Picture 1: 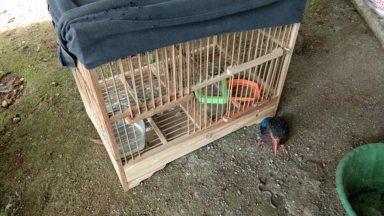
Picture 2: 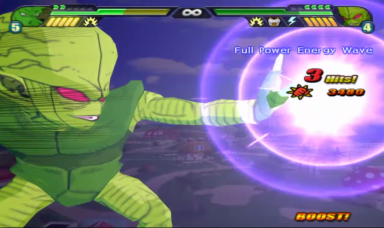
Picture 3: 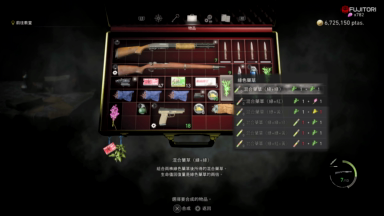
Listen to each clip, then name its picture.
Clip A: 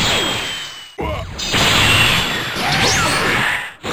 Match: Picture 2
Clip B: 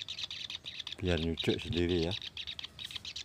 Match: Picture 1